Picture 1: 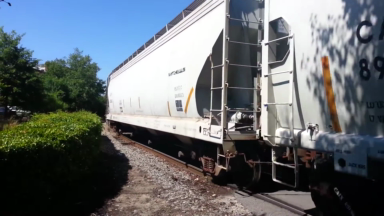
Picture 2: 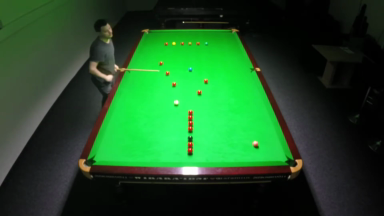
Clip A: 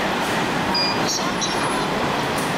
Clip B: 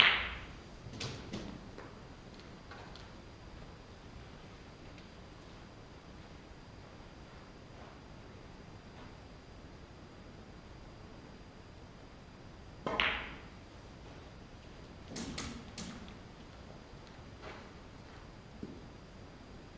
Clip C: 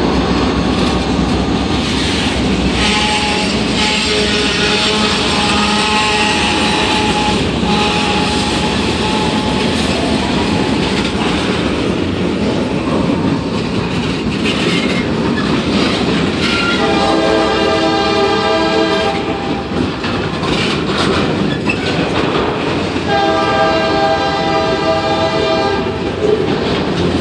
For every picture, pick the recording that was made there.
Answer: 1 C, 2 B